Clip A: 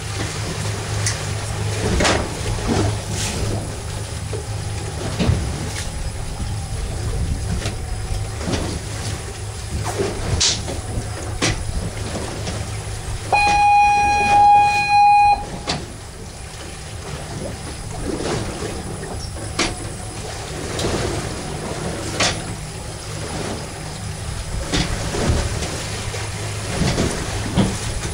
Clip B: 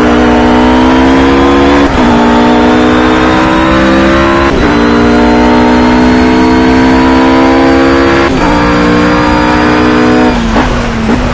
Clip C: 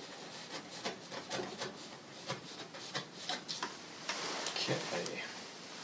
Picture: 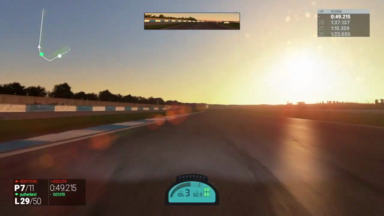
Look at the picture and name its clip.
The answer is B